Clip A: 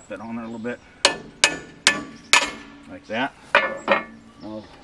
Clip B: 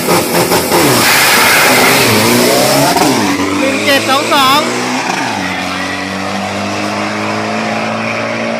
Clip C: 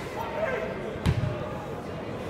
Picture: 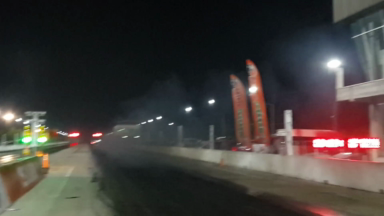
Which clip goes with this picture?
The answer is B